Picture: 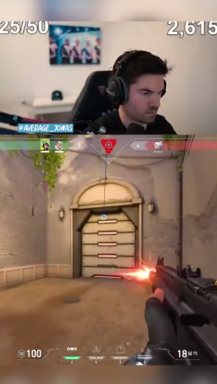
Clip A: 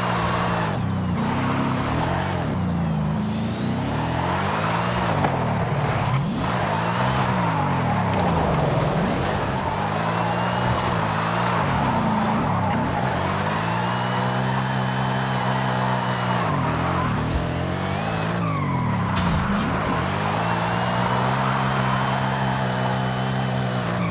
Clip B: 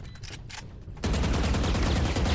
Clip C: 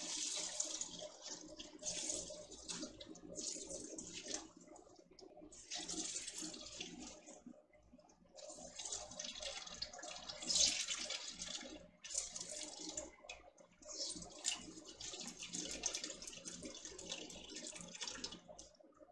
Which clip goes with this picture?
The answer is B